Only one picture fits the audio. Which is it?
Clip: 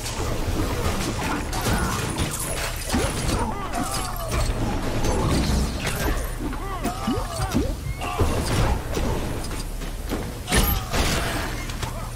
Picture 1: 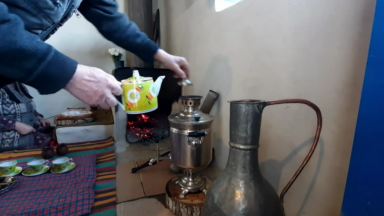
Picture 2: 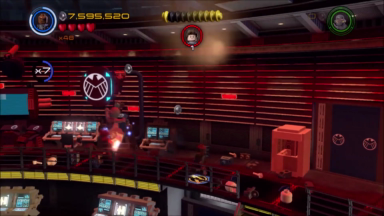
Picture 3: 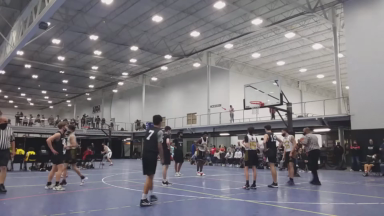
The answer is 2